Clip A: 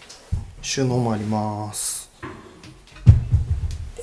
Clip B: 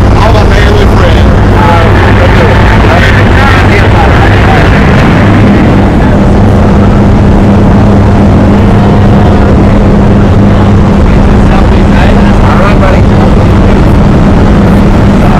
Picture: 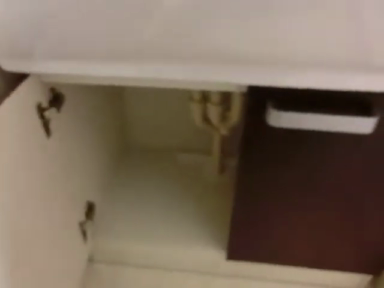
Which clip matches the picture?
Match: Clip A